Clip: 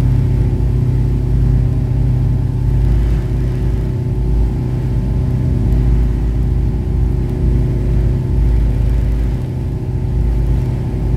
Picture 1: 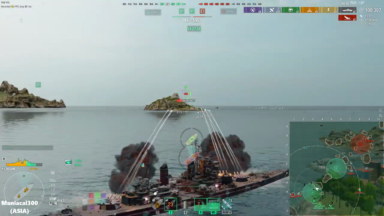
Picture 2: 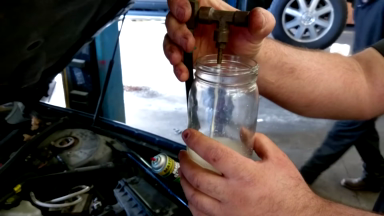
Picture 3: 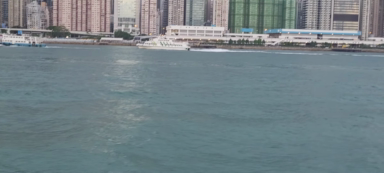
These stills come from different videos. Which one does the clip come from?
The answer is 3